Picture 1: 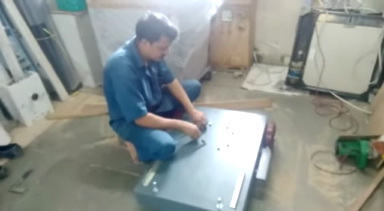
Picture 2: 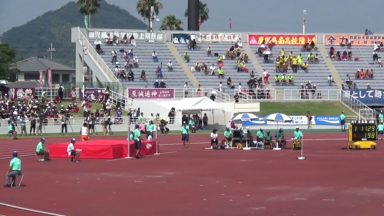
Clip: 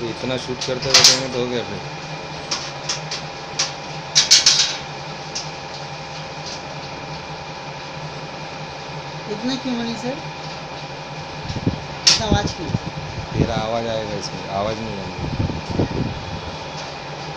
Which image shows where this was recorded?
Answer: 1